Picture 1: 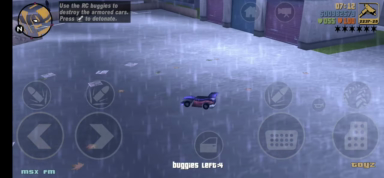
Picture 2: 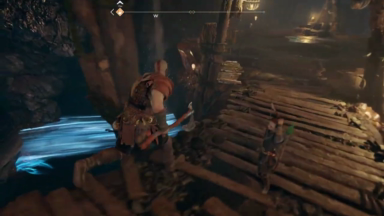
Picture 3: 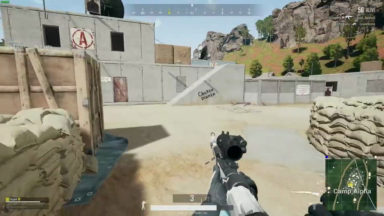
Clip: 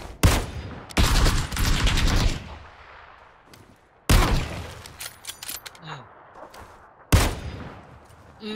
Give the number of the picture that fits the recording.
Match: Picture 3